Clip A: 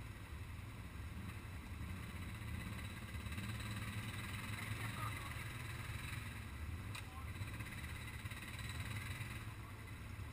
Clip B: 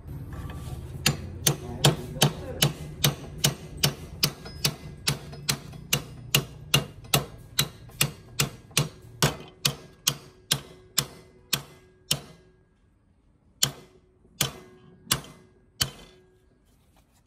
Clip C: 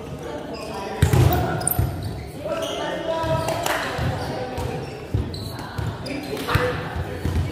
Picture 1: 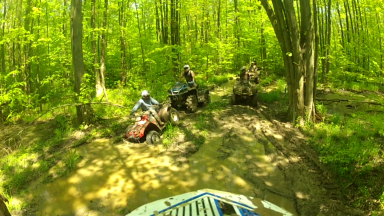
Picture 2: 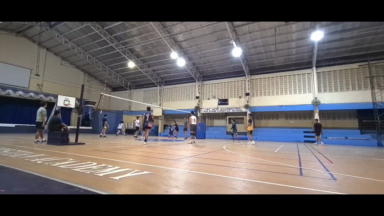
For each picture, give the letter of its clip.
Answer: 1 A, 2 C